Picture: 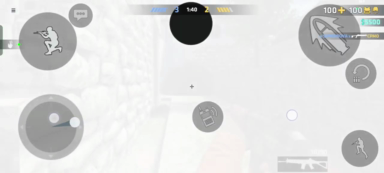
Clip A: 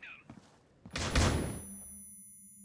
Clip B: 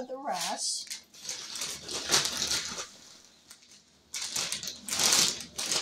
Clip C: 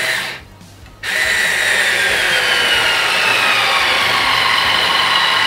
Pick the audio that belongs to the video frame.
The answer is A